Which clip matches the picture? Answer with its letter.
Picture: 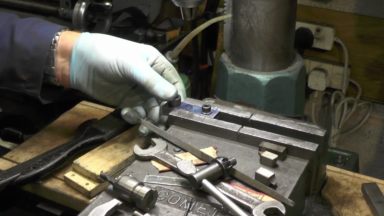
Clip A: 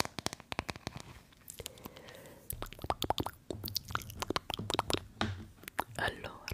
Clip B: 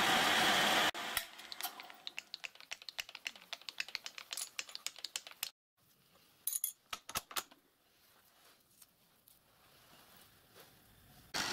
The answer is B